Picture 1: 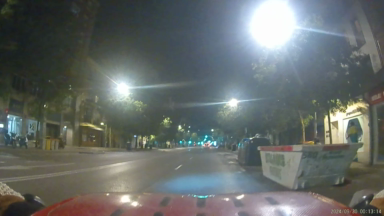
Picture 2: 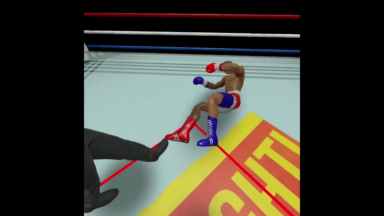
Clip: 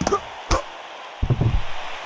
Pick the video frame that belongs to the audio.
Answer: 2